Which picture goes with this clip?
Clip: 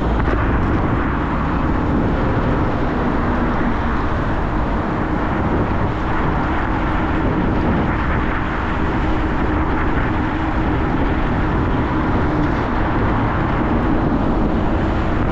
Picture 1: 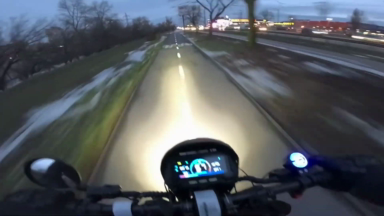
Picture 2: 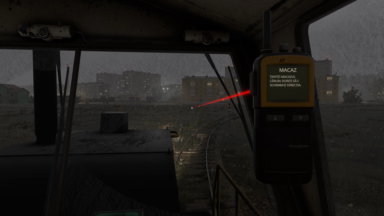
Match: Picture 1